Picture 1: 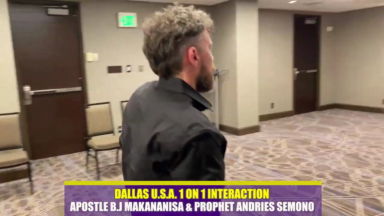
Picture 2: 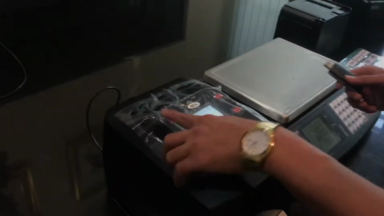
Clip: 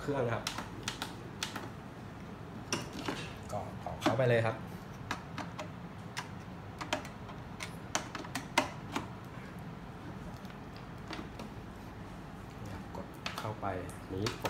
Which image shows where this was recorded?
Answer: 2